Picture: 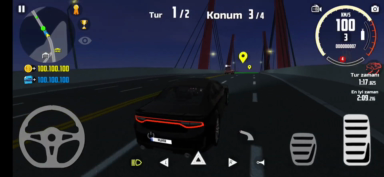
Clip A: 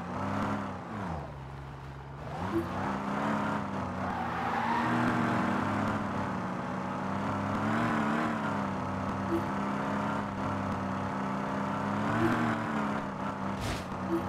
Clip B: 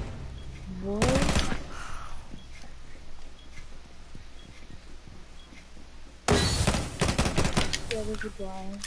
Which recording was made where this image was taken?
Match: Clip A